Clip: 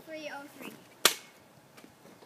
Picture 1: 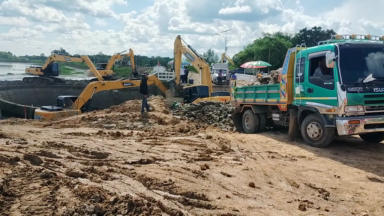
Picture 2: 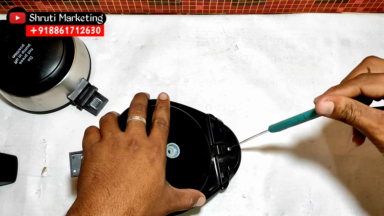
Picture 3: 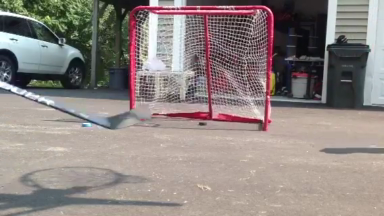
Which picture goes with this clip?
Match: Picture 3